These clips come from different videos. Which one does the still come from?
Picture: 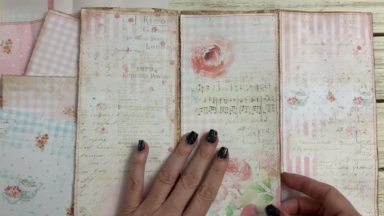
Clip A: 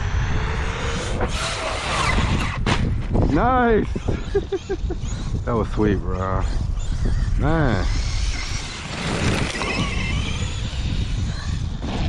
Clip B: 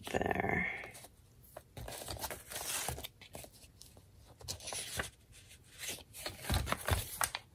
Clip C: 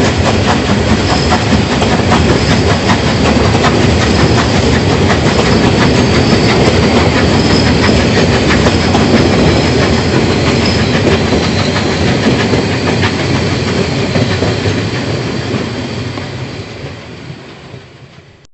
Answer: B